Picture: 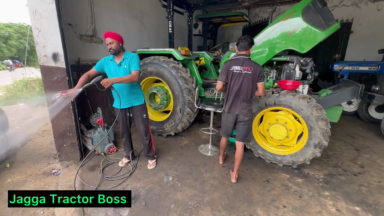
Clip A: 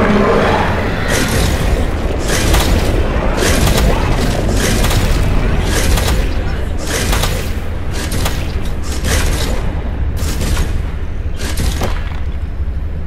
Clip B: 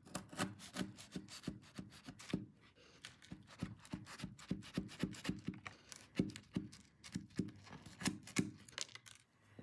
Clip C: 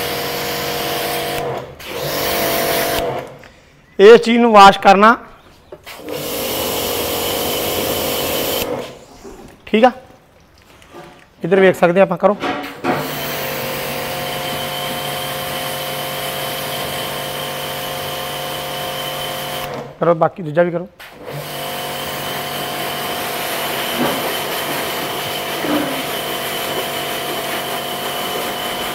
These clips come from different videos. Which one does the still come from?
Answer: C